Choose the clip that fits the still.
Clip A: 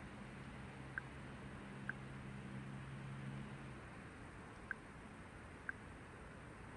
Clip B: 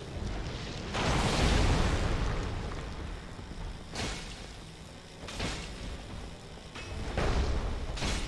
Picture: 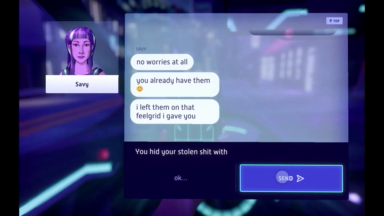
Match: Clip A